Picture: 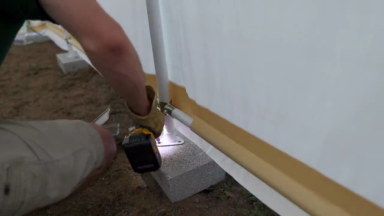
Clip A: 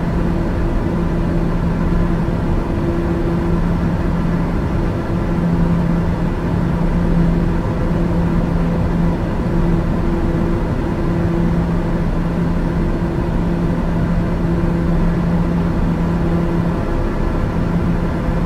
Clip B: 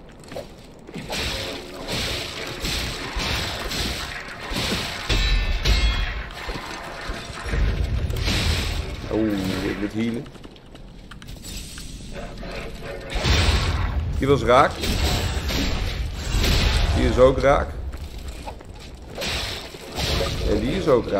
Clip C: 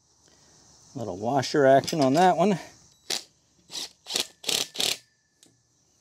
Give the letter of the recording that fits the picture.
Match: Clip C